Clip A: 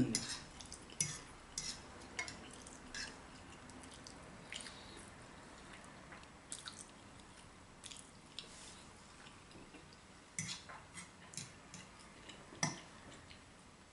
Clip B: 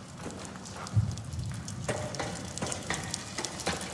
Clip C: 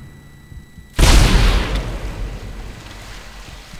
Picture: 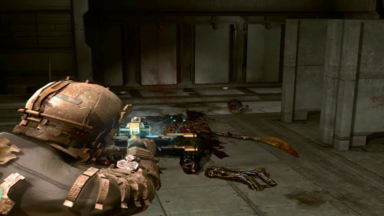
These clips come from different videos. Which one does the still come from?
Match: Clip C